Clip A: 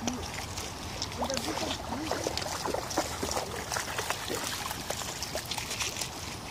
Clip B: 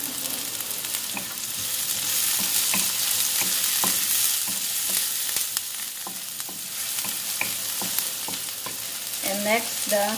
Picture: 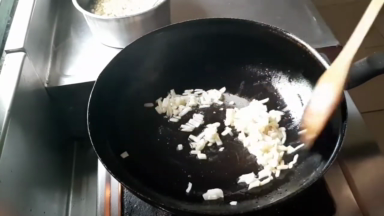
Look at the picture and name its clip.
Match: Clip B